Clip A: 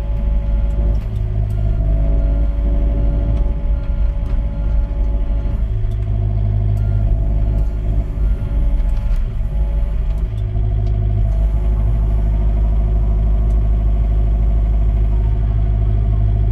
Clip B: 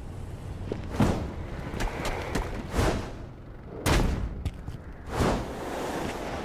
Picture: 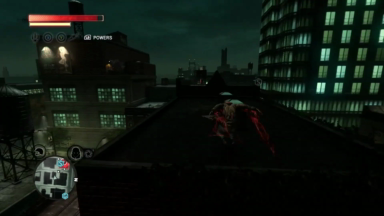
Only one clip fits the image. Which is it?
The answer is B